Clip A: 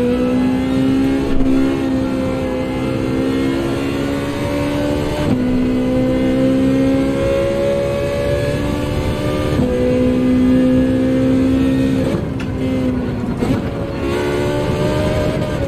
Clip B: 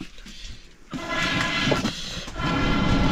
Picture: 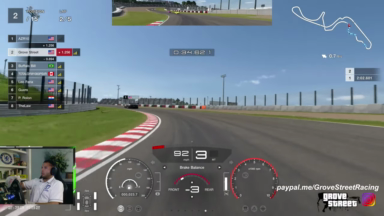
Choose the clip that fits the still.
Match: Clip A